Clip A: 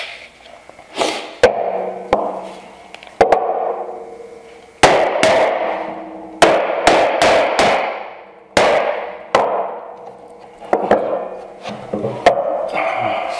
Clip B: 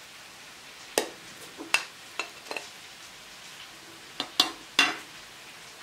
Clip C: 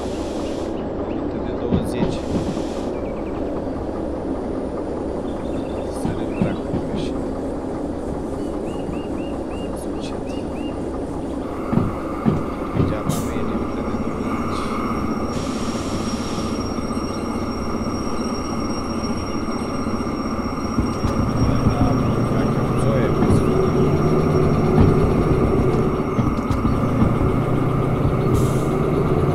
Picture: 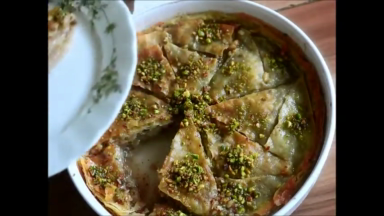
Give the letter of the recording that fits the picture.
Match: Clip B